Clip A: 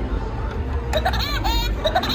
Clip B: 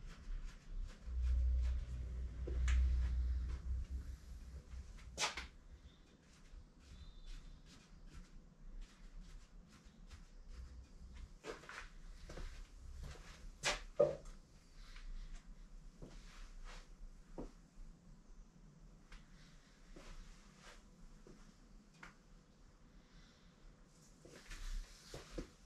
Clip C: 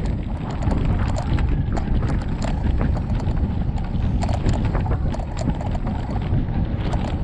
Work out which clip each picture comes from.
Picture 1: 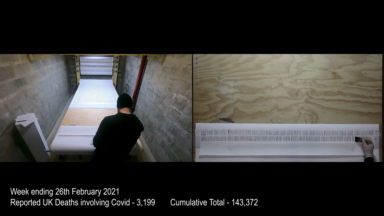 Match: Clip B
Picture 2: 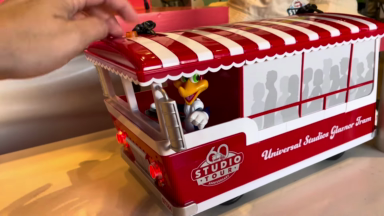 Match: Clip A